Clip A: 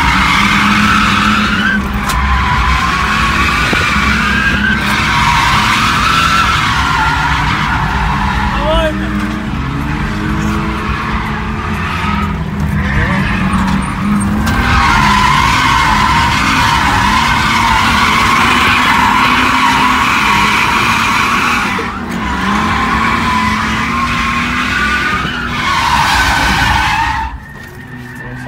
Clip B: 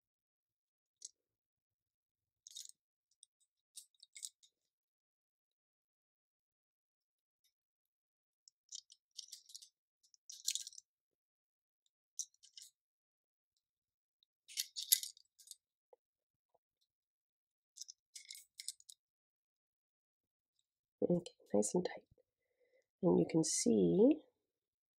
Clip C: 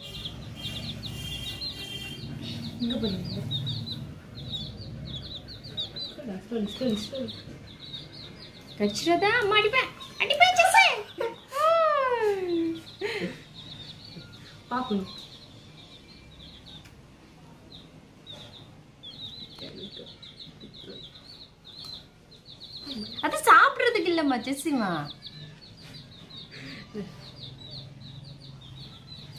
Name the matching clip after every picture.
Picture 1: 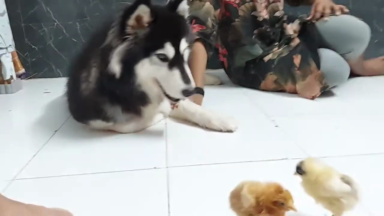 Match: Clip C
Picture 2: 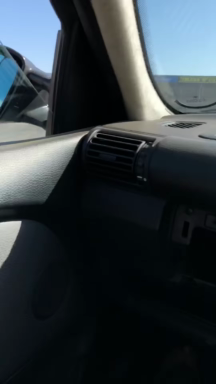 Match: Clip A